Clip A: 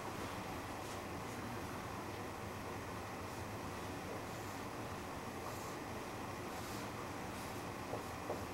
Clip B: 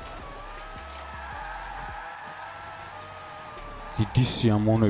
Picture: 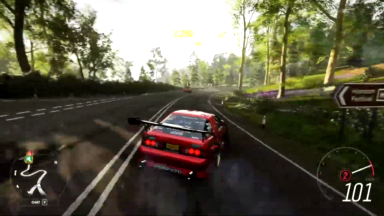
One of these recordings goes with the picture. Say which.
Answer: B